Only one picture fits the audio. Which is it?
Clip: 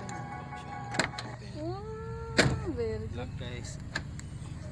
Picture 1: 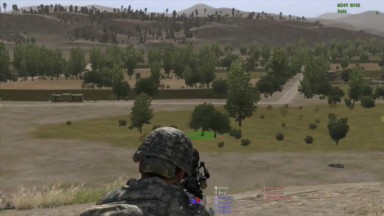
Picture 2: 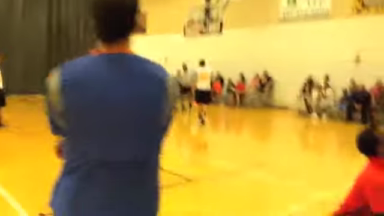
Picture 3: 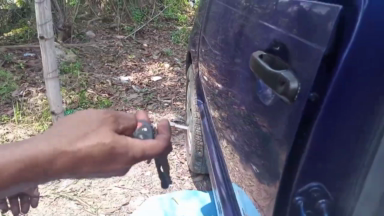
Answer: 3